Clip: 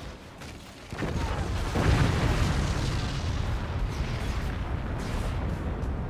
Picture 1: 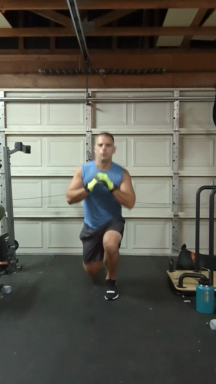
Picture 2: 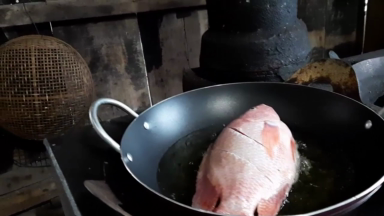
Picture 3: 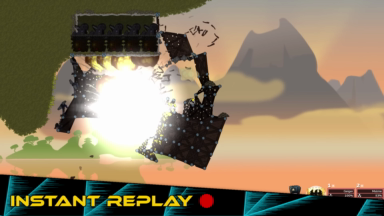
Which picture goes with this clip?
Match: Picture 3